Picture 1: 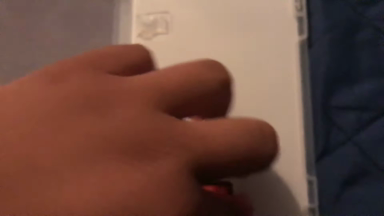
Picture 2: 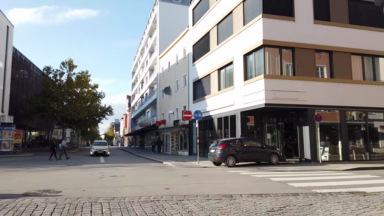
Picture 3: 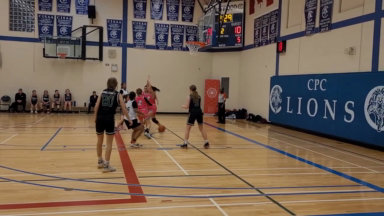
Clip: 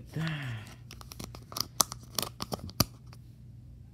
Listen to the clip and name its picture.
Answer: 1